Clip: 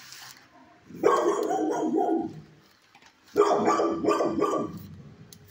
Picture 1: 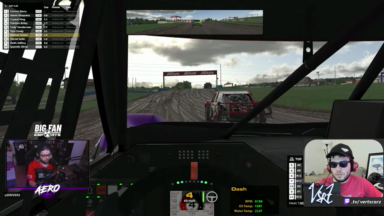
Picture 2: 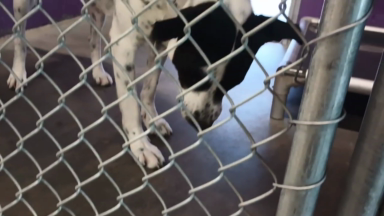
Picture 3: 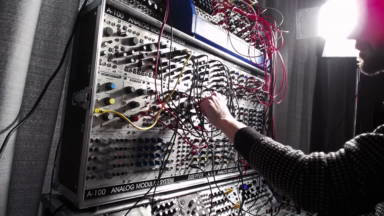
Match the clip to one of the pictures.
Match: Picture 2